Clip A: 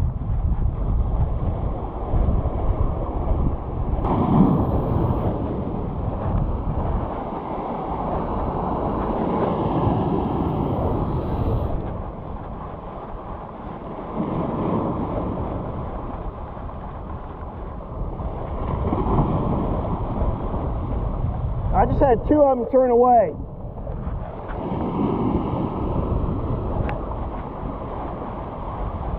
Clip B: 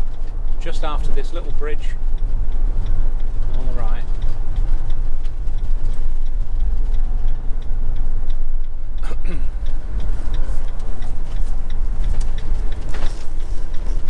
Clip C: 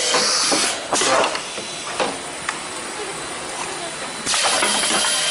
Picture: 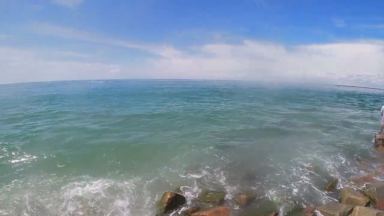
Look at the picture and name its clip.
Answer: A